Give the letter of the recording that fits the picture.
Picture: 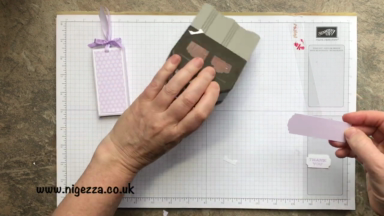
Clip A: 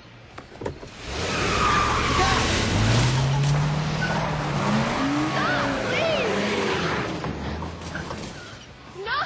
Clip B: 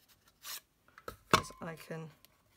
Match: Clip B